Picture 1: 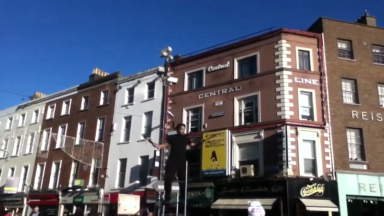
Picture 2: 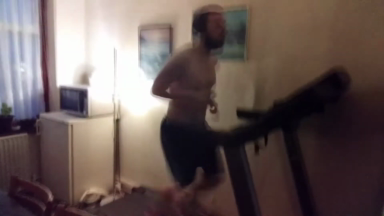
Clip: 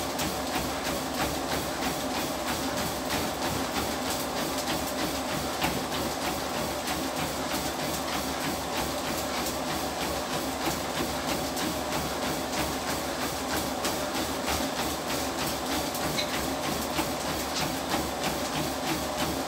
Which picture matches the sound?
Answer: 2